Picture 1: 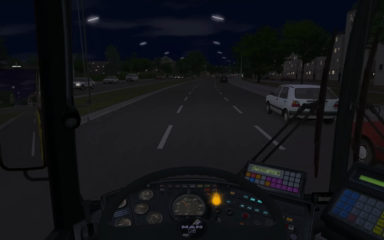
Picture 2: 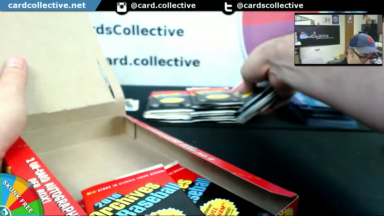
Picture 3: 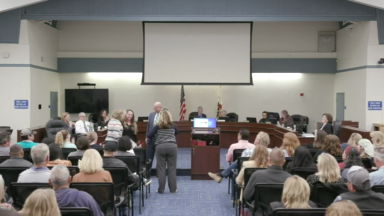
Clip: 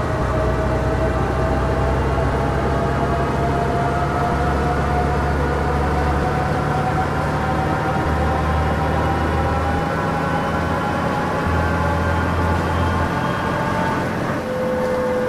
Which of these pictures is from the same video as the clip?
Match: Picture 1